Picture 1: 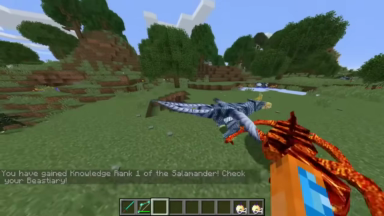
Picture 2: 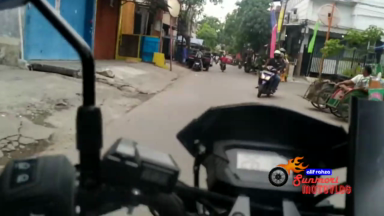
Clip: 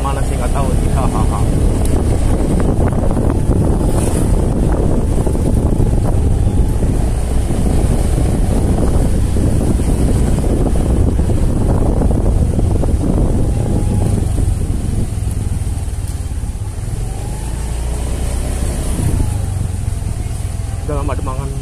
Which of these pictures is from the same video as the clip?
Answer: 2